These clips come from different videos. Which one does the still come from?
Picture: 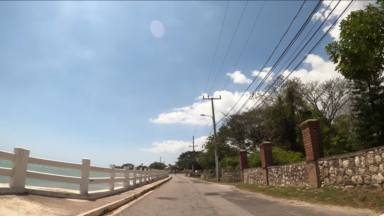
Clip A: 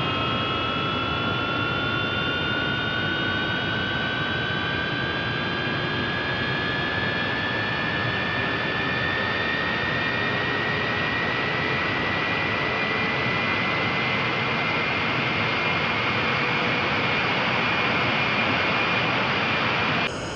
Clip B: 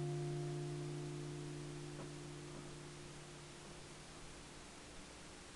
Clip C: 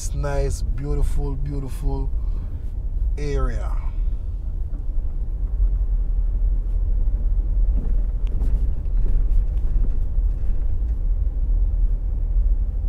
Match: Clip C